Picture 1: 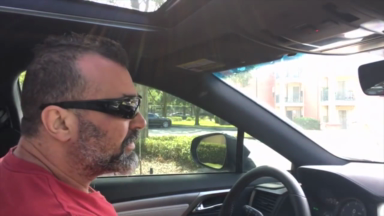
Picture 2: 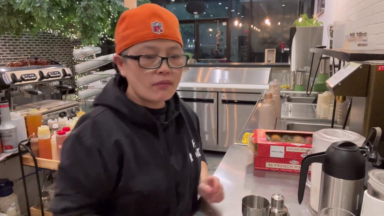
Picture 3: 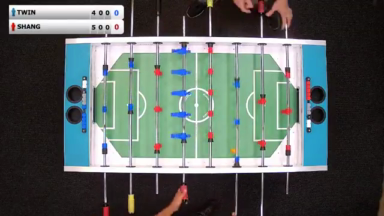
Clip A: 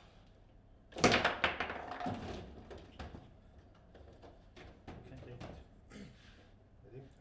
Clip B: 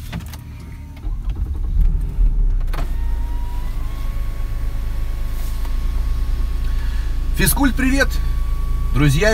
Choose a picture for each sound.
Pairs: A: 3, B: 1